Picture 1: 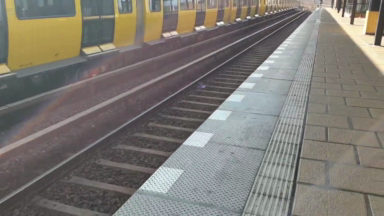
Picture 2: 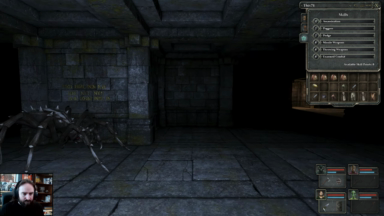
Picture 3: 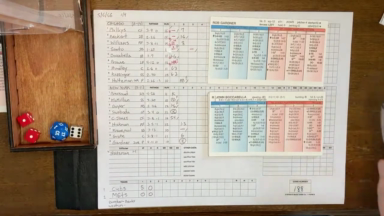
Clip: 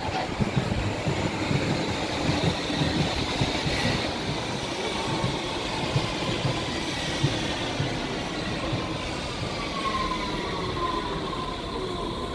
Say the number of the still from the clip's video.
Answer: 1